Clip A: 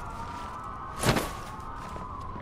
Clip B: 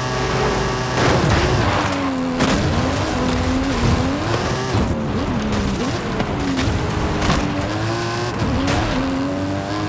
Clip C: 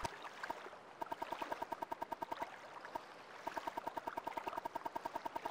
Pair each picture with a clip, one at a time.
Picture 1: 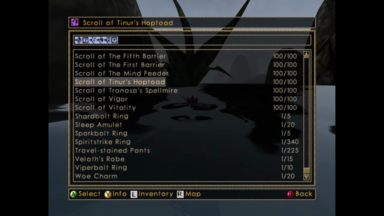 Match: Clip C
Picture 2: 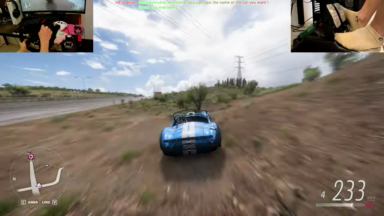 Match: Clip B